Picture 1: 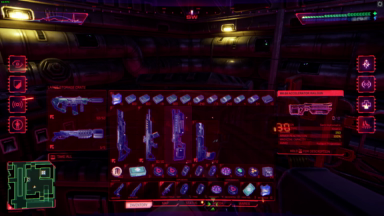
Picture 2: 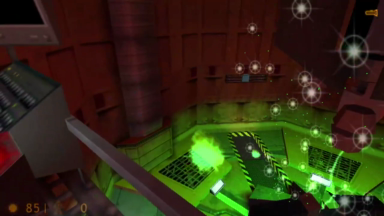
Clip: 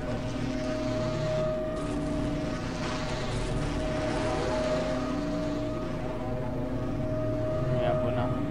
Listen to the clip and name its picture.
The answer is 2